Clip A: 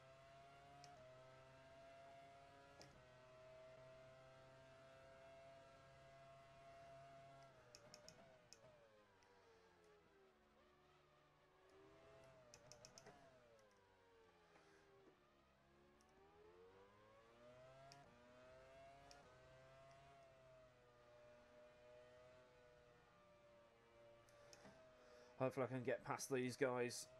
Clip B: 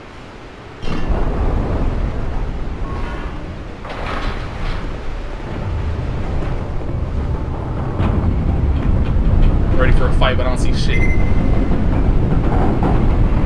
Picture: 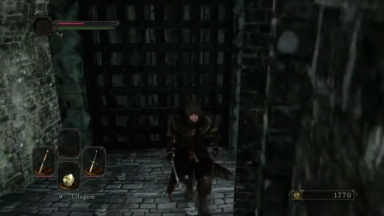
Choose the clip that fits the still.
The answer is B